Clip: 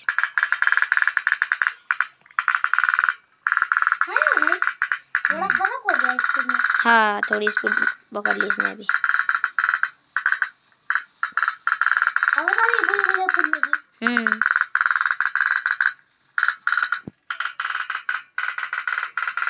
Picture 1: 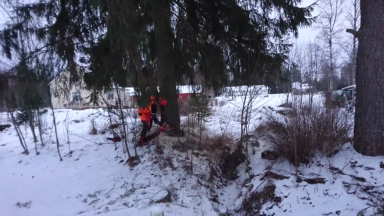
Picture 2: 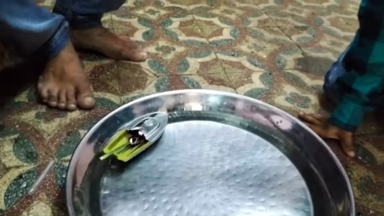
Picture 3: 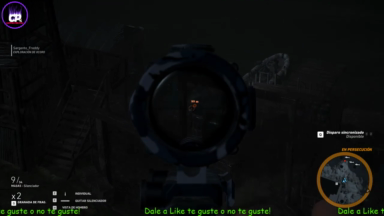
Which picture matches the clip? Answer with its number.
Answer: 2